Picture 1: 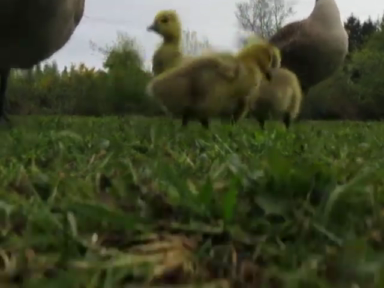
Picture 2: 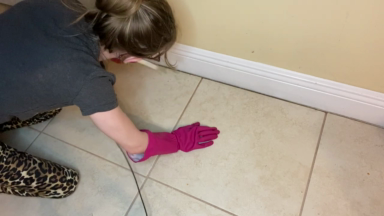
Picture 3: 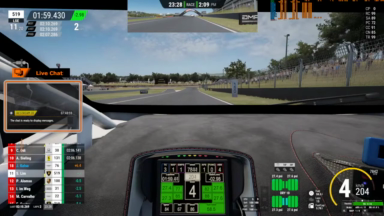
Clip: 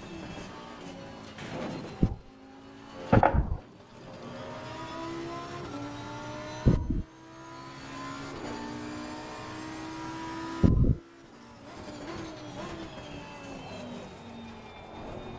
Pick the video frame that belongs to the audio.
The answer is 3